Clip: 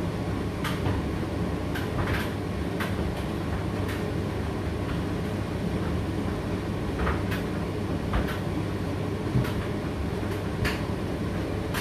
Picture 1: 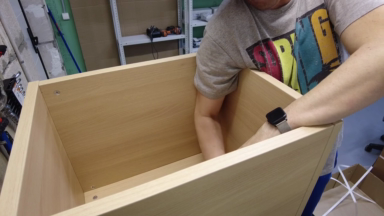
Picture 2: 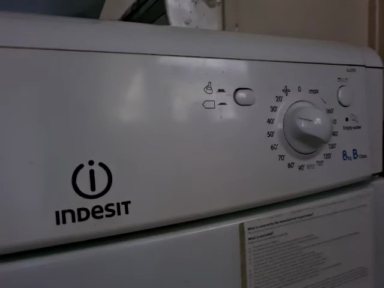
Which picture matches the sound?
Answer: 2